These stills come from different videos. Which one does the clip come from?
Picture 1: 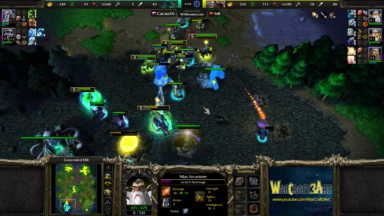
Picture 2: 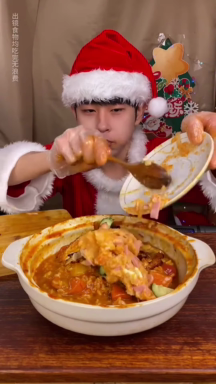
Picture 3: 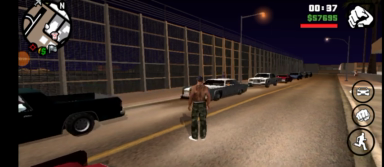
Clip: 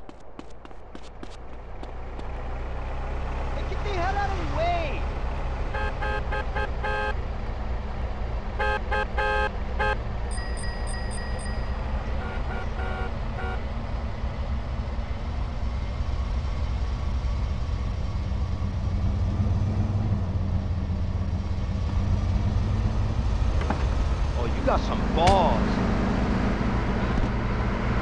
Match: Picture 3